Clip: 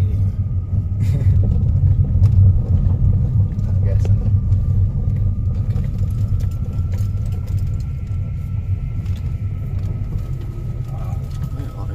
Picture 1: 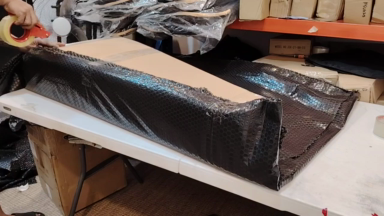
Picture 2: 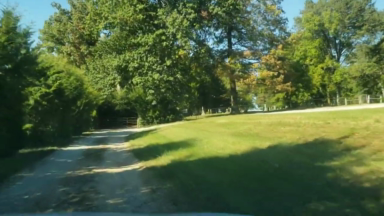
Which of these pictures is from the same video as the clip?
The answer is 2